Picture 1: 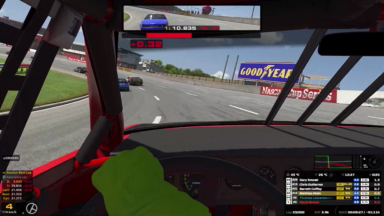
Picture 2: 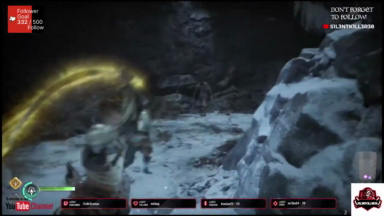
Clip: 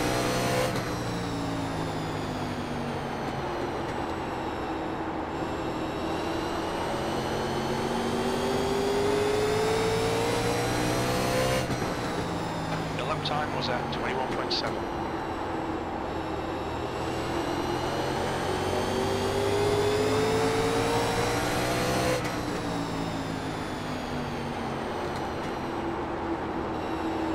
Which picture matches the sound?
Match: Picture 1